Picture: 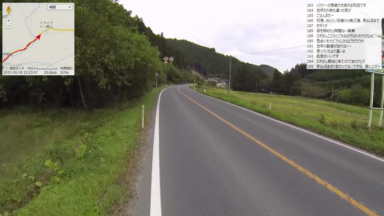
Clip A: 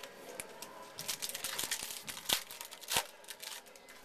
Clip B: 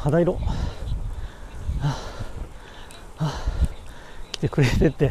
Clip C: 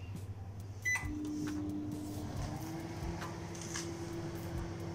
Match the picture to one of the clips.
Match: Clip B